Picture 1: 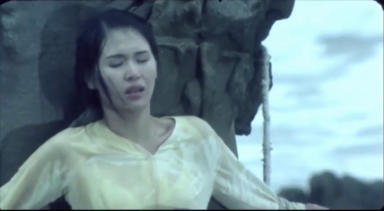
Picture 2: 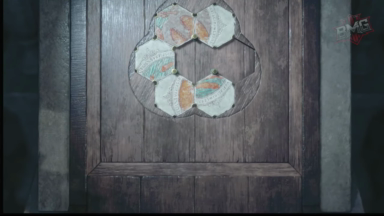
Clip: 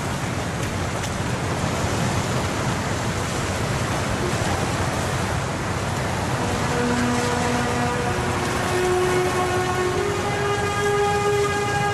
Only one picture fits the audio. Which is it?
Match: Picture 1